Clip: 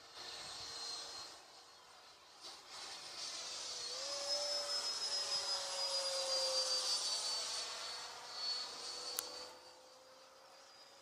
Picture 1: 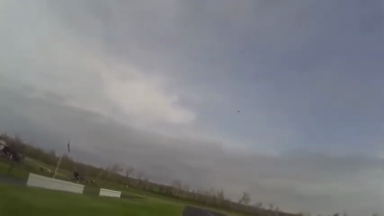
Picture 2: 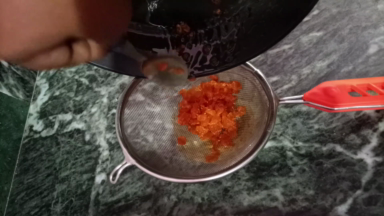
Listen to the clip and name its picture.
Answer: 1